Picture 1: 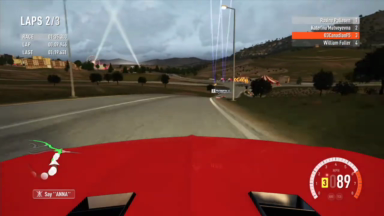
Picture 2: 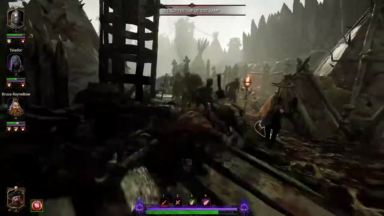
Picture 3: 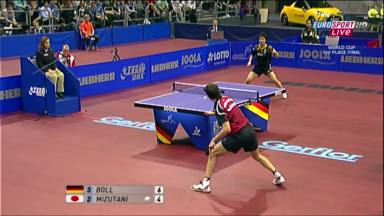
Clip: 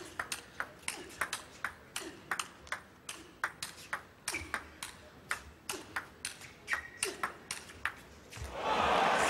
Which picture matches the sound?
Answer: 3